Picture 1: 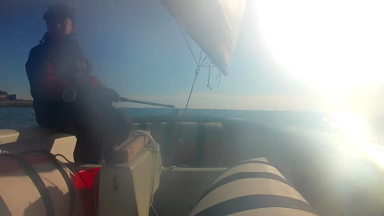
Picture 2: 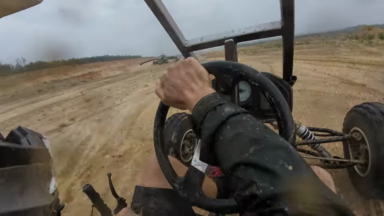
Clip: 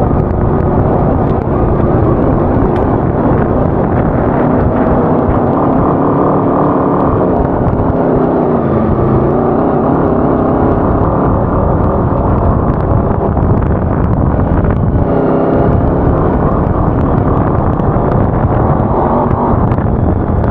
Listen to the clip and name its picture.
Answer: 2